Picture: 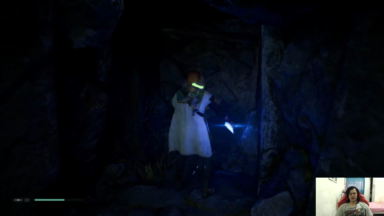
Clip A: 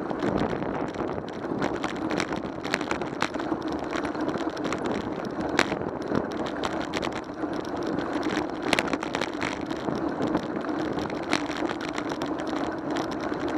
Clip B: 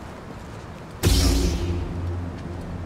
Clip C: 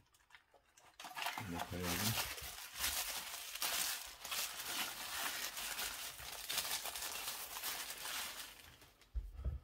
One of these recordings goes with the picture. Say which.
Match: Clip B